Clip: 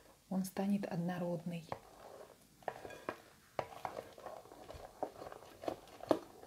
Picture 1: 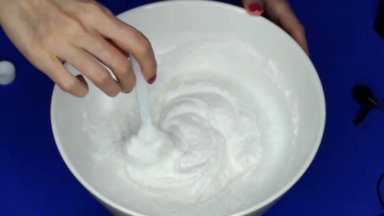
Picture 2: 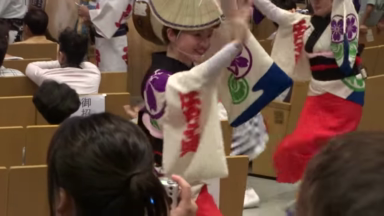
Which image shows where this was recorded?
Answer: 1